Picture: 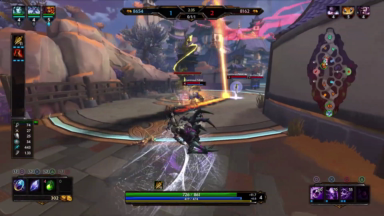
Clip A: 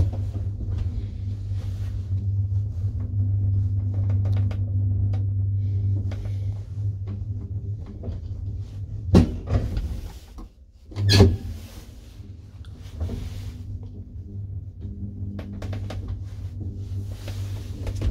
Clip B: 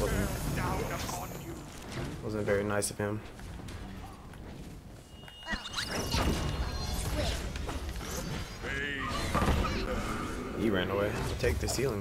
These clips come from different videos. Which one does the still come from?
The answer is B